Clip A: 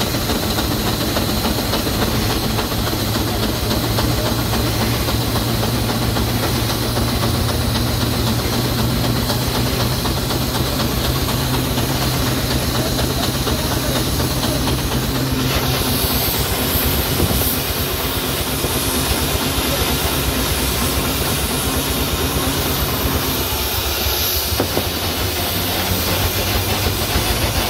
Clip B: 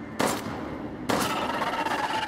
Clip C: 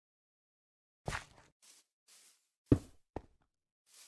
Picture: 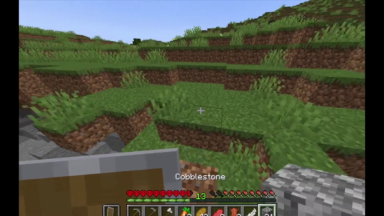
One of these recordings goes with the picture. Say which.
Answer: C